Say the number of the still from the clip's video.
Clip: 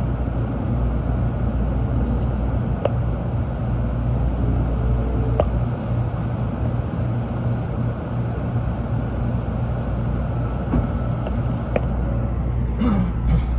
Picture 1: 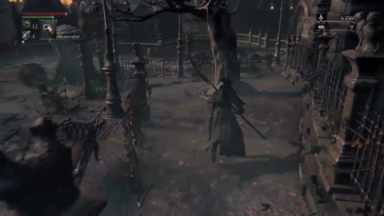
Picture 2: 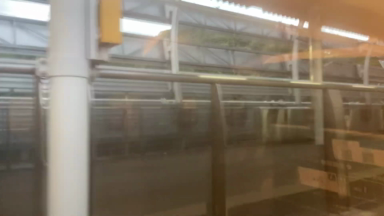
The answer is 2